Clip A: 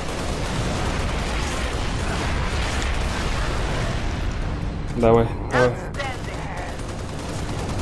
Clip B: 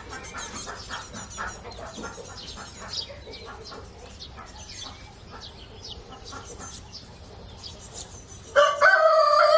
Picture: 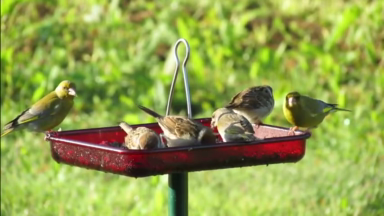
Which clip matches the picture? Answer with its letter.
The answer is B